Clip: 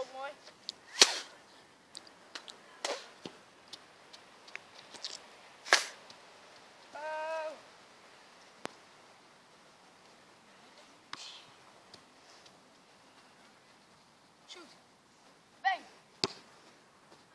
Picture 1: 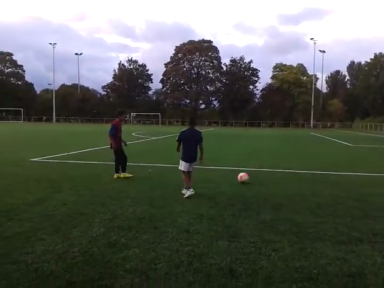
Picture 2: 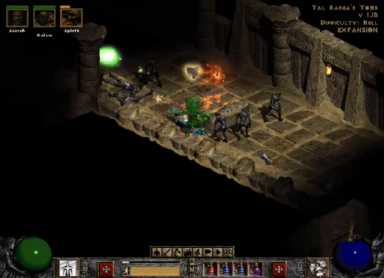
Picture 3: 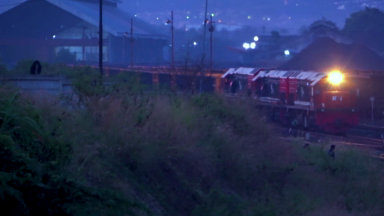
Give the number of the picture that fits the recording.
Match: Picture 1